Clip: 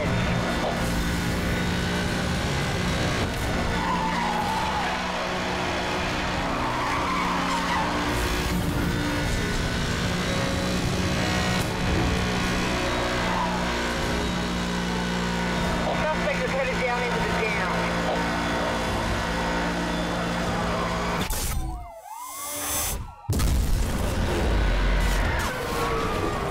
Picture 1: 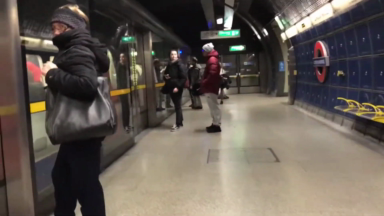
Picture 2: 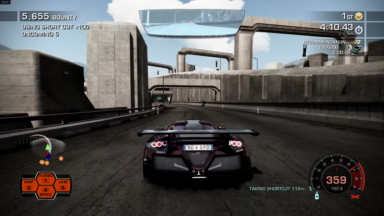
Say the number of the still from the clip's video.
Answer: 2